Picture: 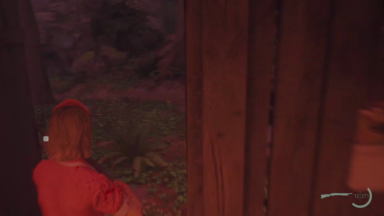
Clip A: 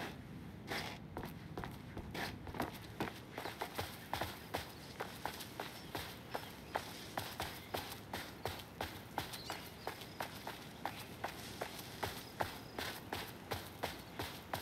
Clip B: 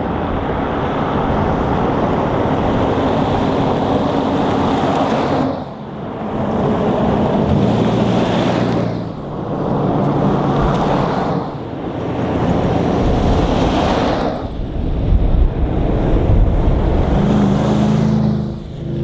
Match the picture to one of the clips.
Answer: A